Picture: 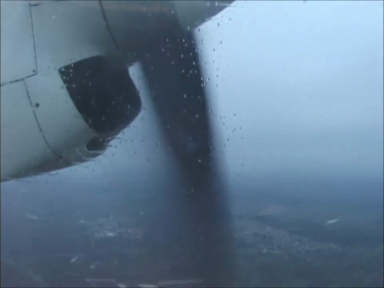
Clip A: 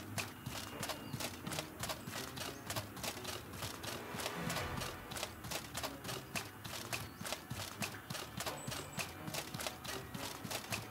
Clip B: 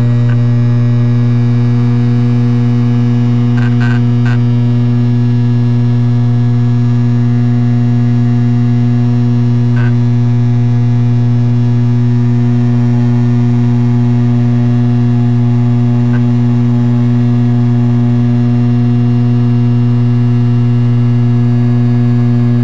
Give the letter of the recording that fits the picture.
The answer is B